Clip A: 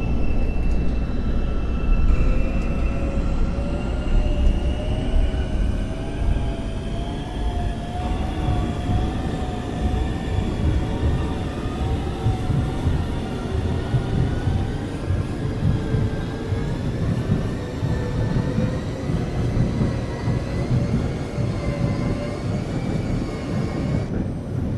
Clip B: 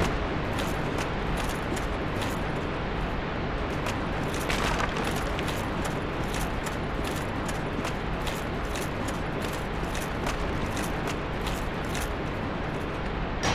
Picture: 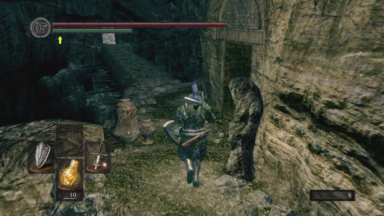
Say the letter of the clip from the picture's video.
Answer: B